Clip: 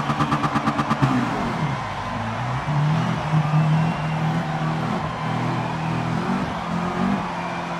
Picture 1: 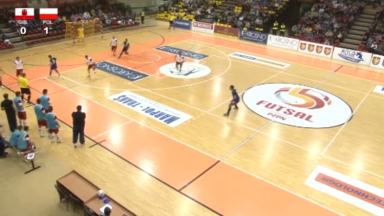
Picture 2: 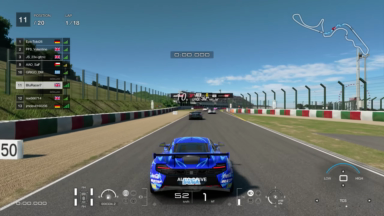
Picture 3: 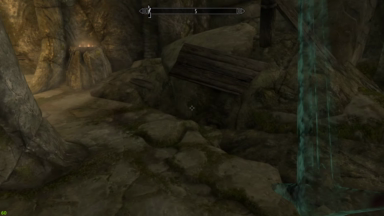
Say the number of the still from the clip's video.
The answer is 2